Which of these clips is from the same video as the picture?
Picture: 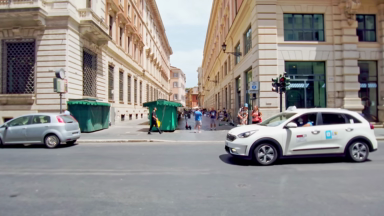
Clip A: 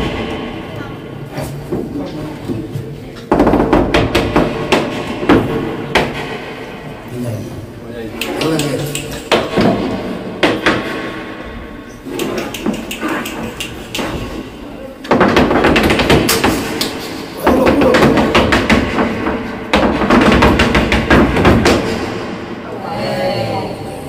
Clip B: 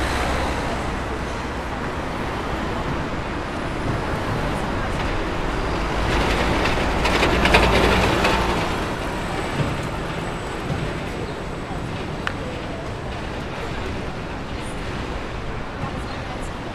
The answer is B